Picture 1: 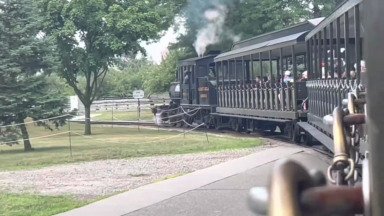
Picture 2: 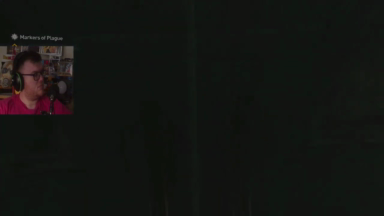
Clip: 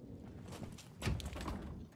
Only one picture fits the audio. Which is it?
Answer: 2